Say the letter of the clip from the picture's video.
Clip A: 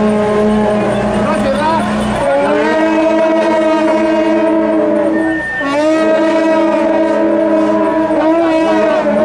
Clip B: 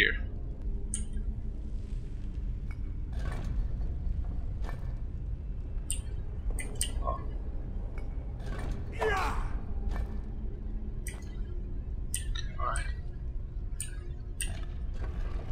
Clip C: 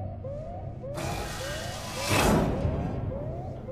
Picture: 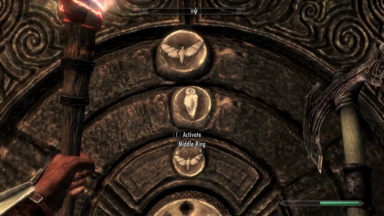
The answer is B